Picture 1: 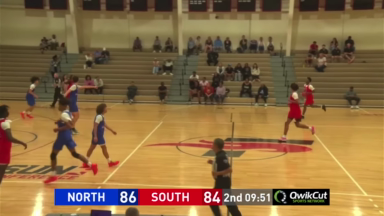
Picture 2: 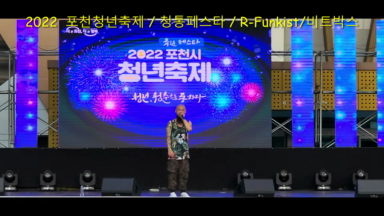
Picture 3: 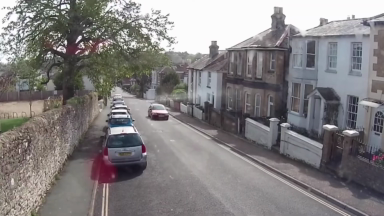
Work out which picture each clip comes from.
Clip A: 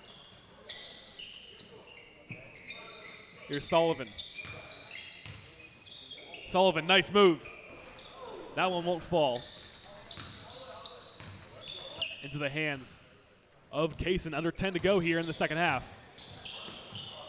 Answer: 1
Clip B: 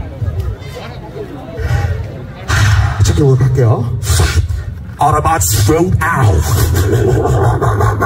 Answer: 2